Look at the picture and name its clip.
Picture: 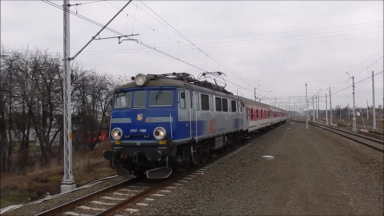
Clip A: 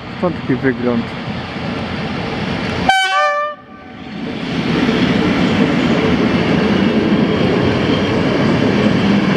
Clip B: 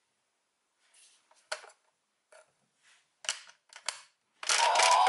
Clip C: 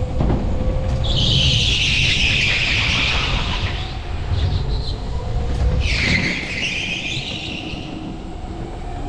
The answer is A